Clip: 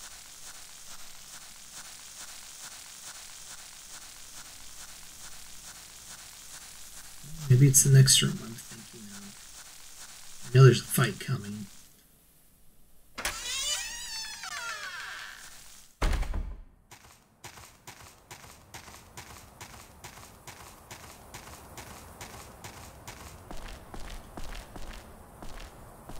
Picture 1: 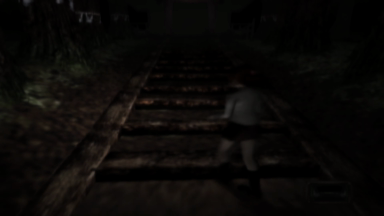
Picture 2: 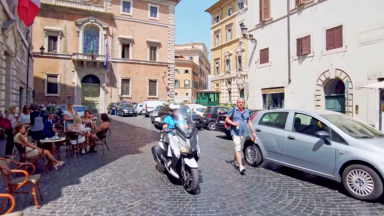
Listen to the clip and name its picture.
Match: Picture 1